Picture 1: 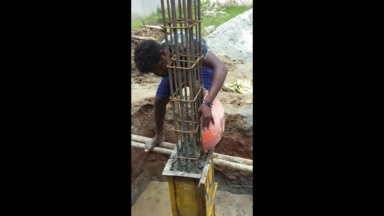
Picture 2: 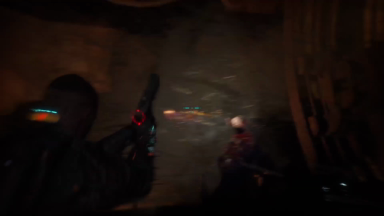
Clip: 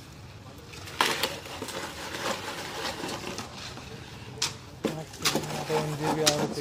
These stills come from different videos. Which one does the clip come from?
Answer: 1